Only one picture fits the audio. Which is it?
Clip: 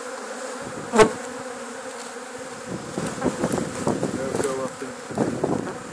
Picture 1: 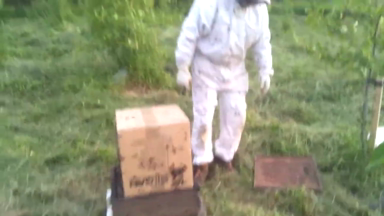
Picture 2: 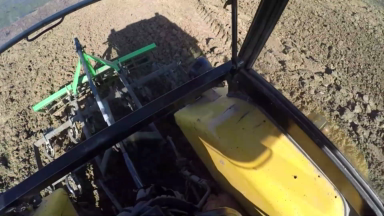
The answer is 1